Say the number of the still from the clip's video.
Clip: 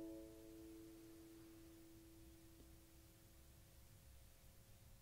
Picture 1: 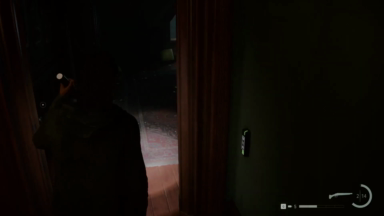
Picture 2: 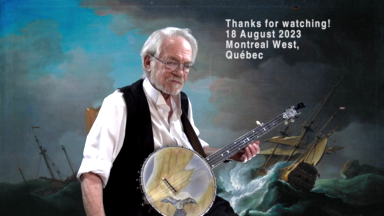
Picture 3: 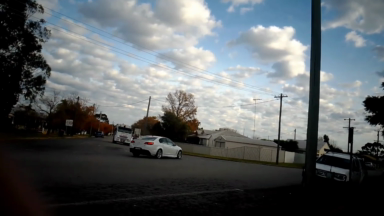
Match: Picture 2